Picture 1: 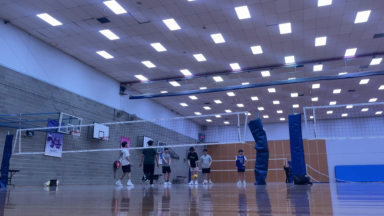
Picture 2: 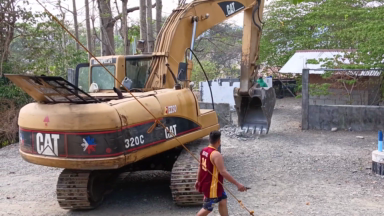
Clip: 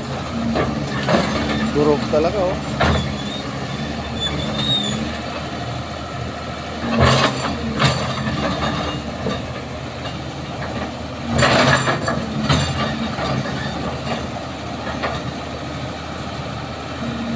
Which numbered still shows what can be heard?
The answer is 2